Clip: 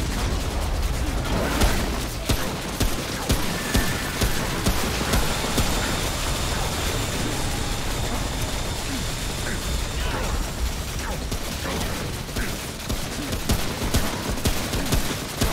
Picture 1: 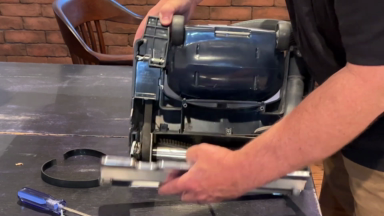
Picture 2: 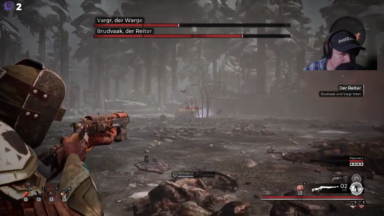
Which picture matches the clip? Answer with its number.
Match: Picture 2